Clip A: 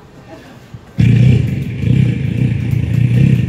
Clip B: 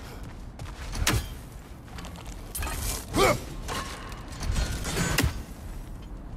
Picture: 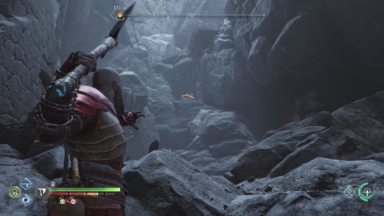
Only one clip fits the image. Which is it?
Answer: B